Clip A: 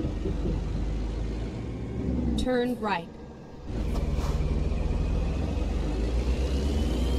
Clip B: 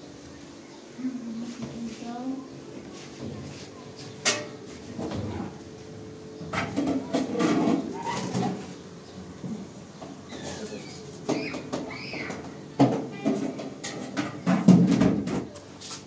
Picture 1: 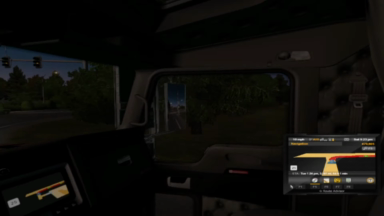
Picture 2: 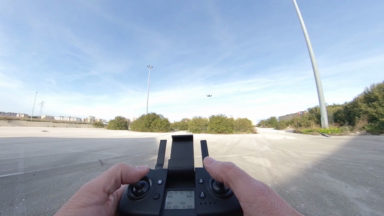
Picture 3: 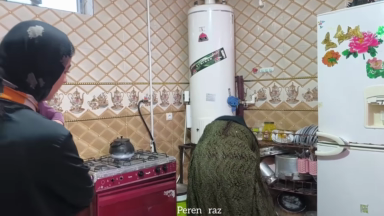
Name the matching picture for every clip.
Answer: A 1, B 3